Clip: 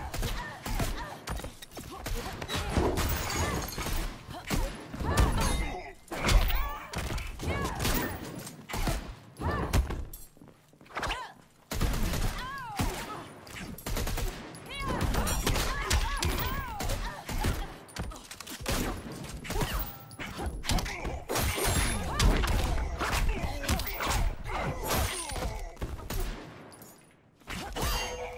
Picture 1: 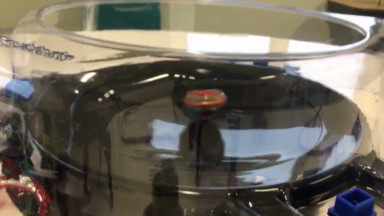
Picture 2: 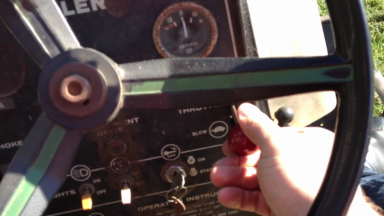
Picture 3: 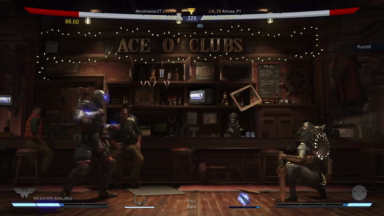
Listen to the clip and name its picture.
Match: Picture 3